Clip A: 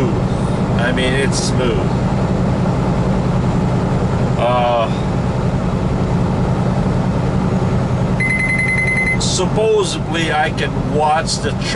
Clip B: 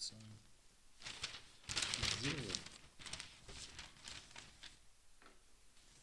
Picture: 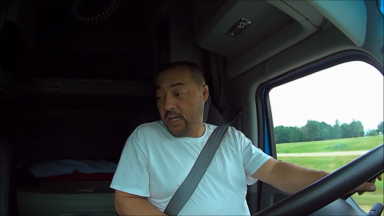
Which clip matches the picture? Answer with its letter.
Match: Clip A